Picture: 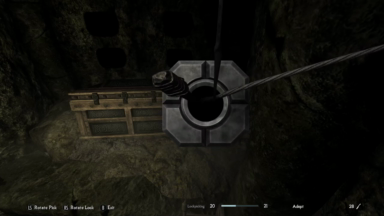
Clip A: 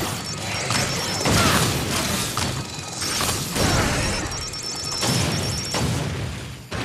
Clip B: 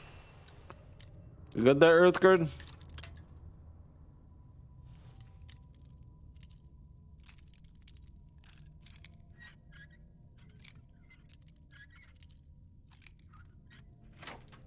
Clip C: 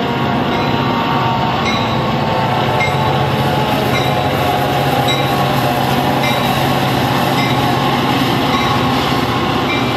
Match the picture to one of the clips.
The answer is B